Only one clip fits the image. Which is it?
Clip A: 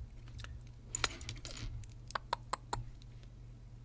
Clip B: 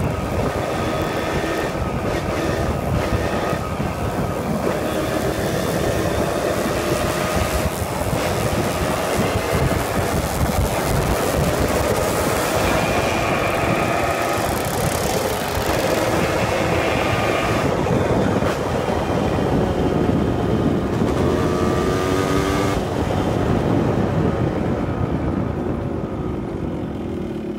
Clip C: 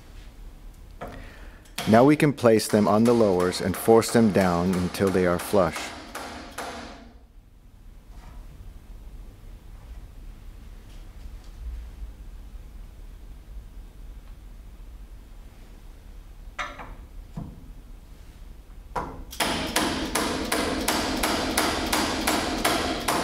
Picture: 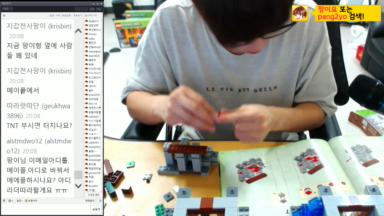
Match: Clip A